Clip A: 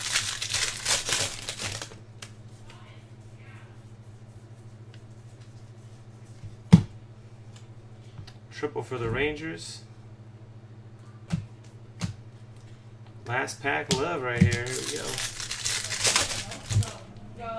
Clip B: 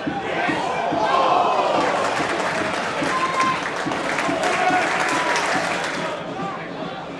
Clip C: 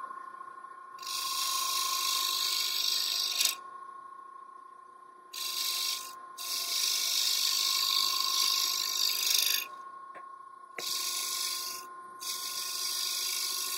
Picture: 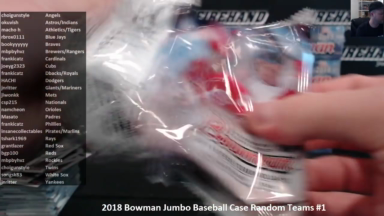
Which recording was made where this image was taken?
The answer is A